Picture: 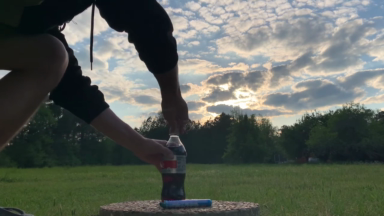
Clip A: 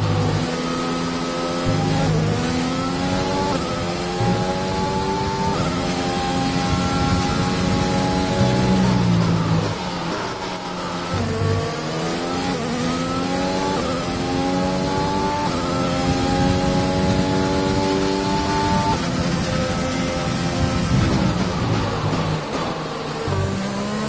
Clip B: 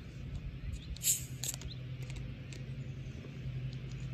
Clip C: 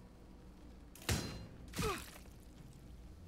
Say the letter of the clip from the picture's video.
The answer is B